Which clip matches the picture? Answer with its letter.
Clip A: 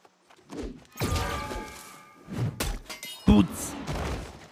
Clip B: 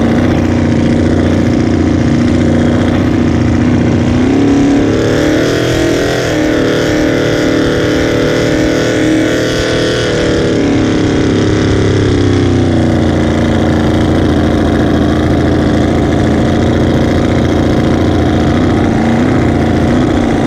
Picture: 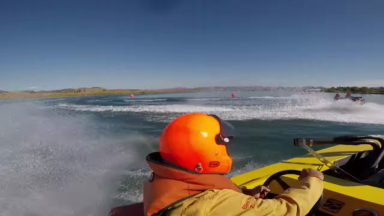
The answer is B